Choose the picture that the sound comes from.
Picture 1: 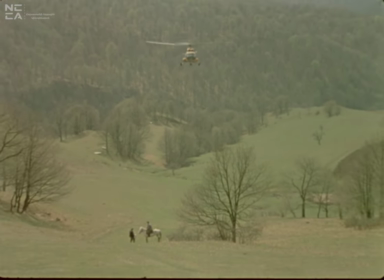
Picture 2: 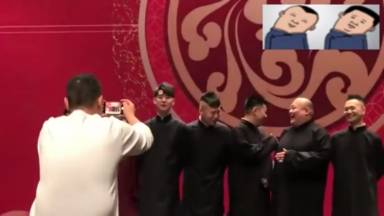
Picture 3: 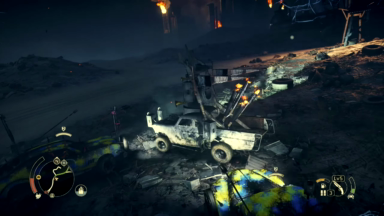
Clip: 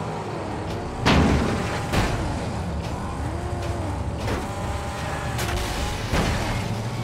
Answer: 3